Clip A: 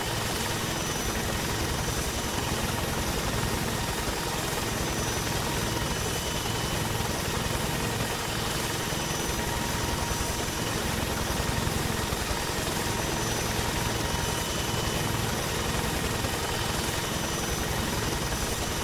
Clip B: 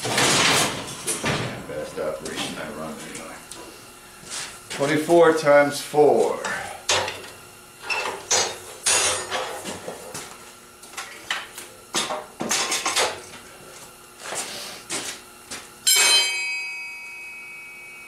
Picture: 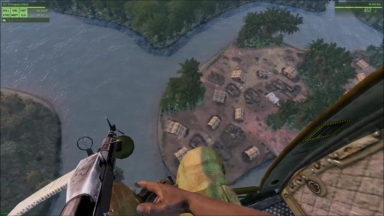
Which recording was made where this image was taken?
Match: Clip A